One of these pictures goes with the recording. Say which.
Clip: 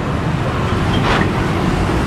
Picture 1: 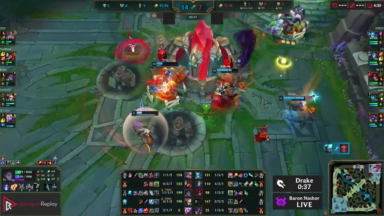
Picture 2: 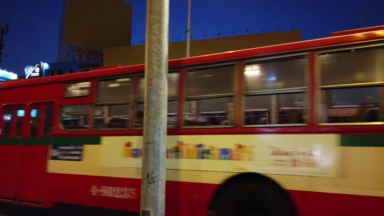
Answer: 2